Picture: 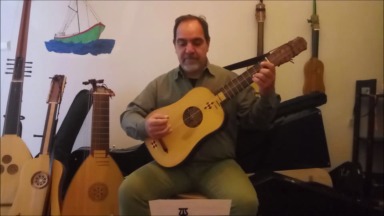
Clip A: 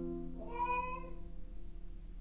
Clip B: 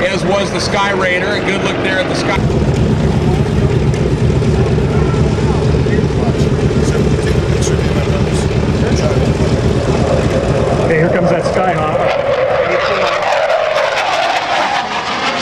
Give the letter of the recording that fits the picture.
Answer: A